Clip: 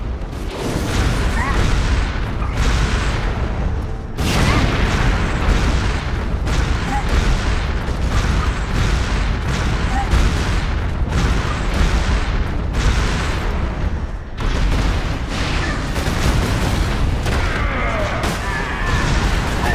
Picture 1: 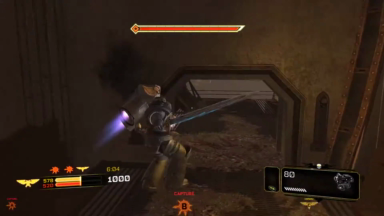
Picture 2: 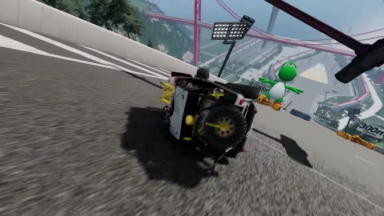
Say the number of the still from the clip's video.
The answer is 1